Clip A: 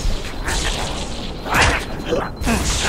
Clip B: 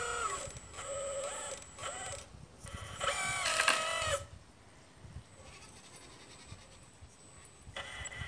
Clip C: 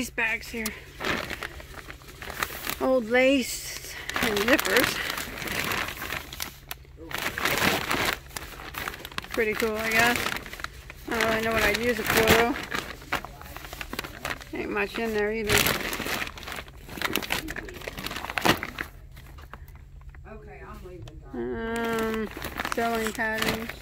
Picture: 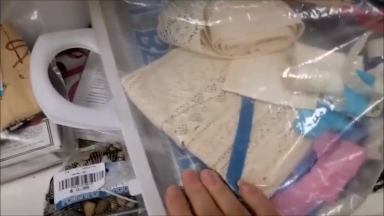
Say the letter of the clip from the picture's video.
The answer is C